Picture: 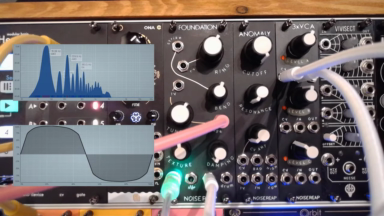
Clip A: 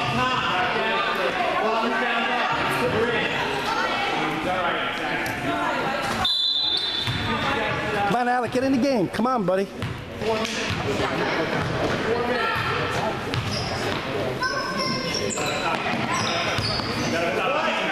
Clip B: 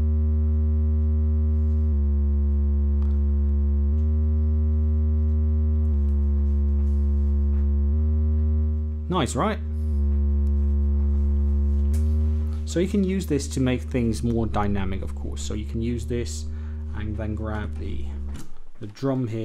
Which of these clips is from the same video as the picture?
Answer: B